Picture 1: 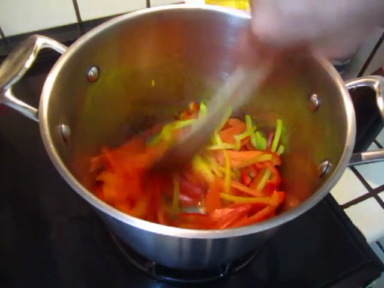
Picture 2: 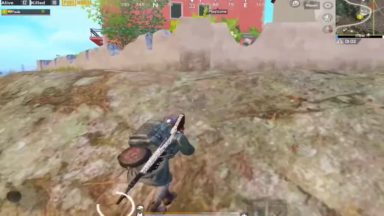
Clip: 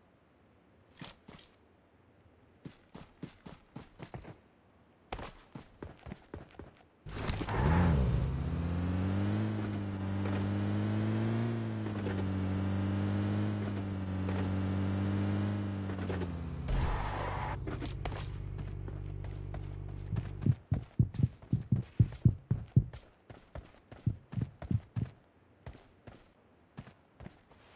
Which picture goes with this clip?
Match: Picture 2